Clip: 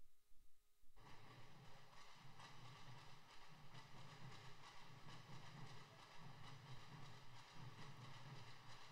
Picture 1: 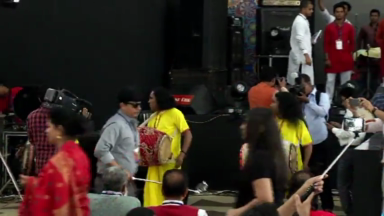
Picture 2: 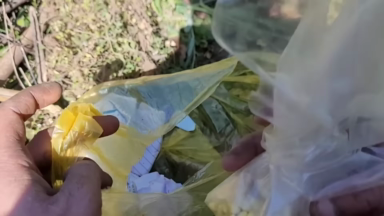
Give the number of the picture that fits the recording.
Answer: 1